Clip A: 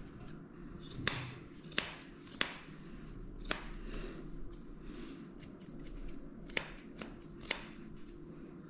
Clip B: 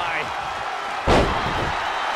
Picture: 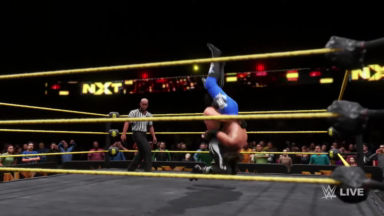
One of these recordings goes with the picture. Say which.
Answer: B